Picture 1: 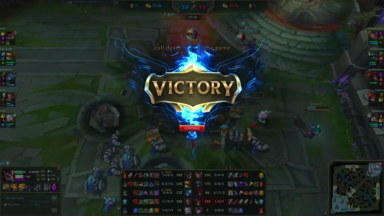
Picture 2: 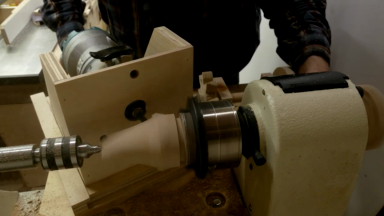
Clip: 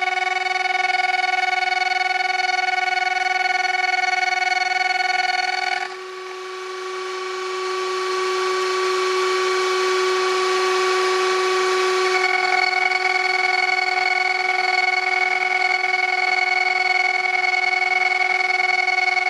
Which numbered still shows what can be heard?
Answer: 2